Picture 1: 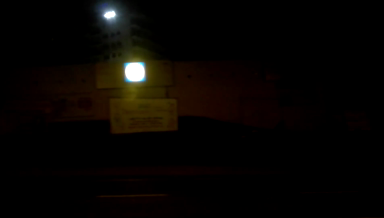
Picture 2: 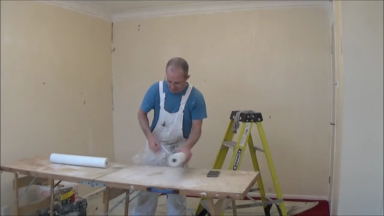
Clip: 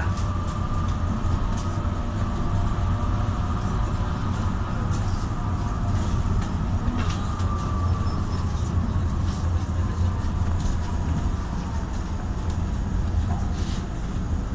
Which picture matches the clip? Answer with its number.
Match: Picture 1